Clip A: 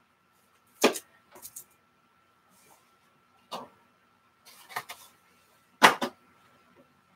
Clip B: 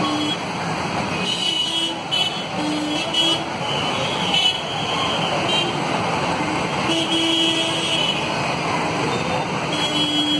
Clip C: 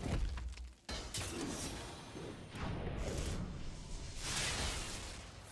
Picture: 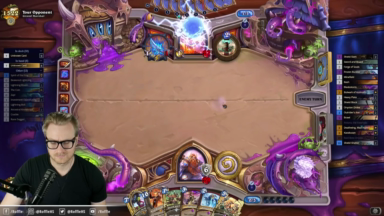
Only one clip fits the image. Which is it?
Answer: C